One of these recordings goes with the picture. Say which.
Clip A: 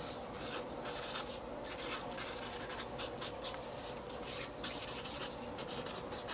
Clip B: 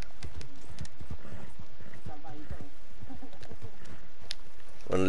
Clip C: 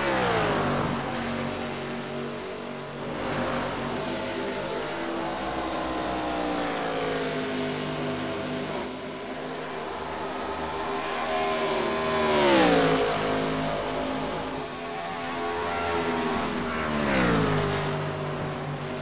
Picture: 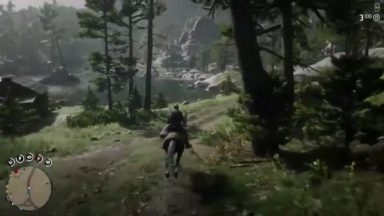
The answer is B